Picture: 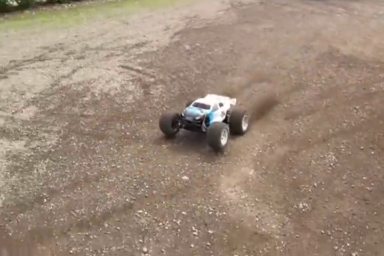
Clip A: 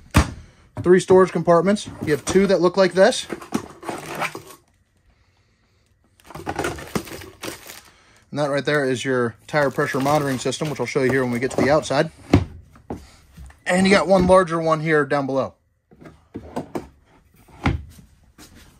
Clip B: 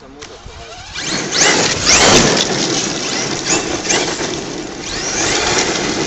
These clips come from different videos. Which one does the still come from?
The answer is B